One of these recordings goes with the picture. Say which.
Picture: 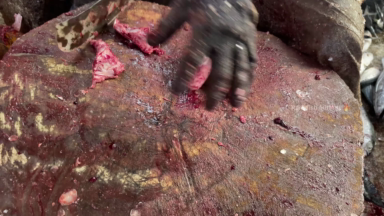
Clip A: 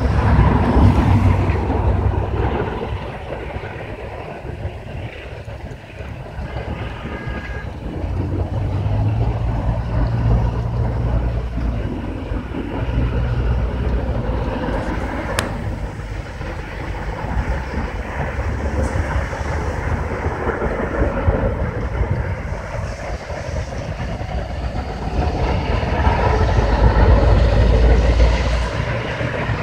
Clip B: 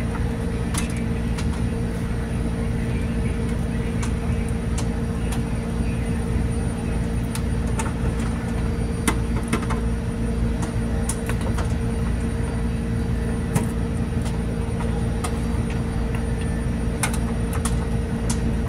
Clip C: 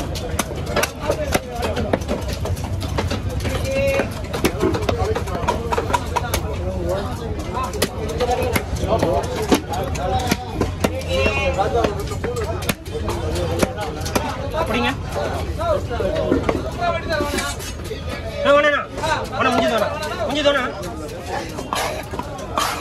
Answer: C